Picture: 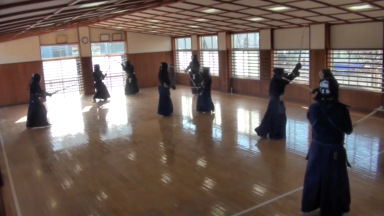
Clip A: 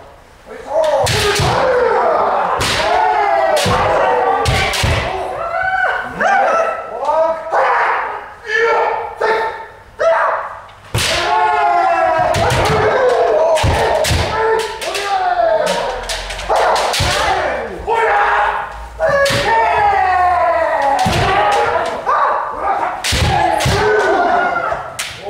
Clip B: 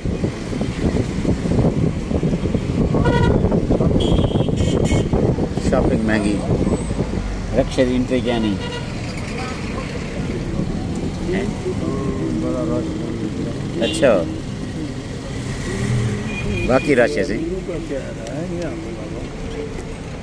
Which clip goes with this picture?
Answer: A